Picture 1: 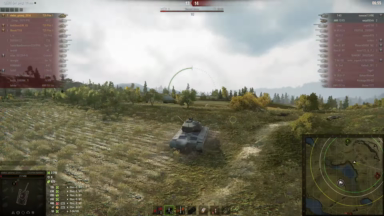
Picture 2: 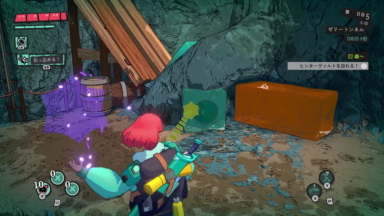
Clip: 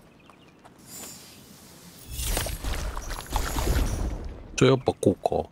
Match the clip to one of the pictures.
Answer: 2